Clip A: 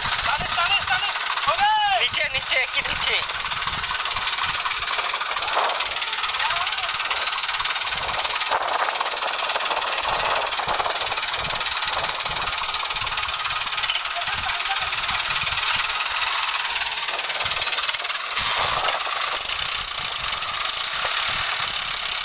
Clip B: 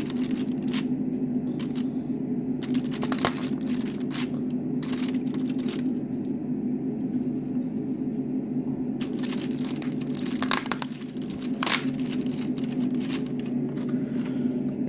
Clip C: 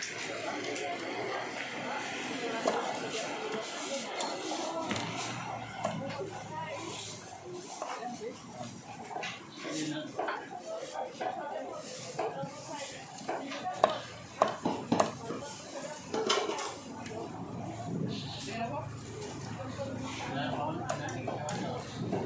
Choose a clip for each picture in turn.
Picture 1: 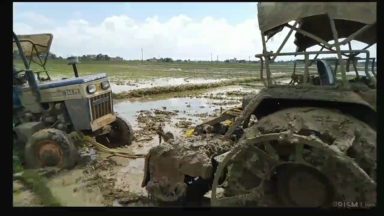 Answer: A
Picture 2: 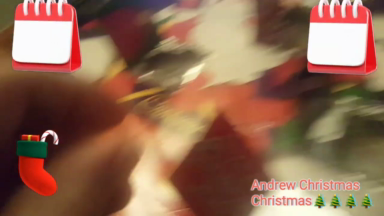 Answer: B